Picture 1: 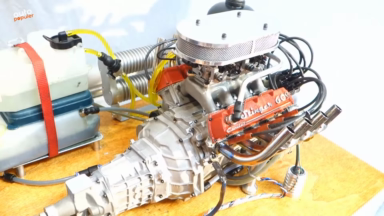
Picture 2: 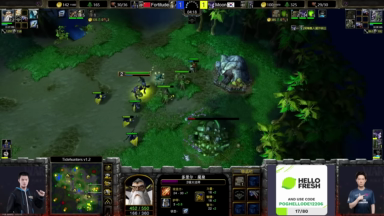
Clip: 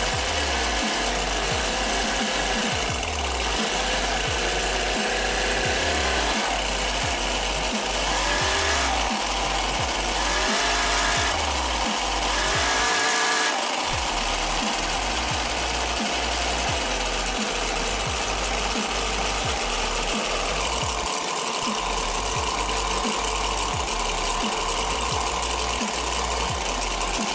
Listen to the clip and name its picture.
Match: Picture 1